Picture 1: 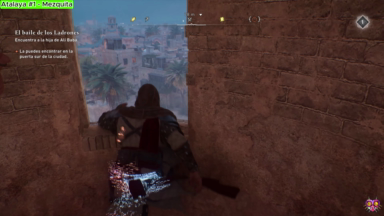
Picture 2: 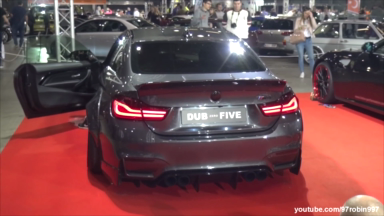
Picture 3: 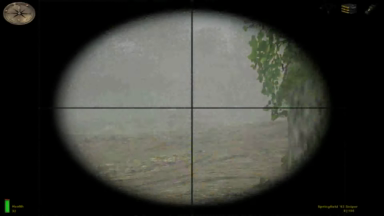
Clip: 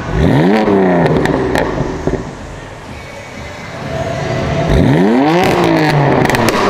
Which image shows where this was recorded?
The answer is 2